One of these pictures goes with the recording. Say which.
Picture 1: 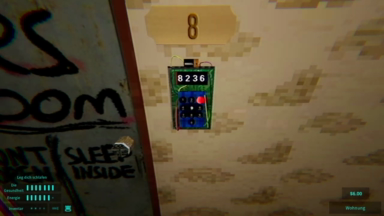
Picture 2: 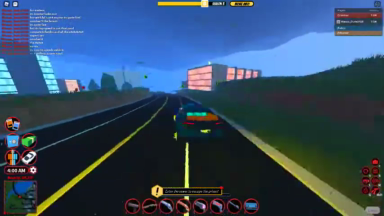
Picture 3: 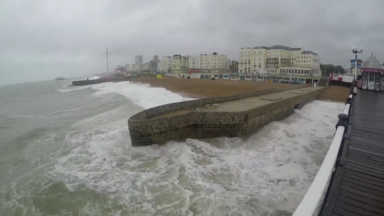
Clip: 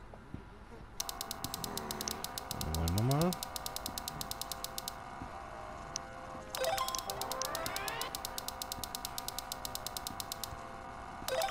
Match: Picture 1